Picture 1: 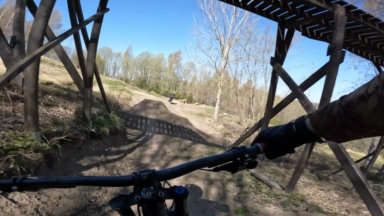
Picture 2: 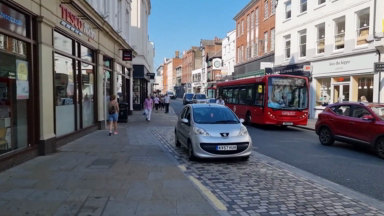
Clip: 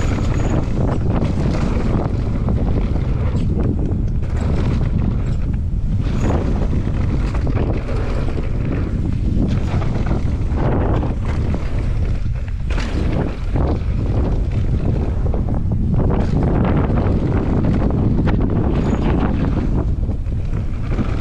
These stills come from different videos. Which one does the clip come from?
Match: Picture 1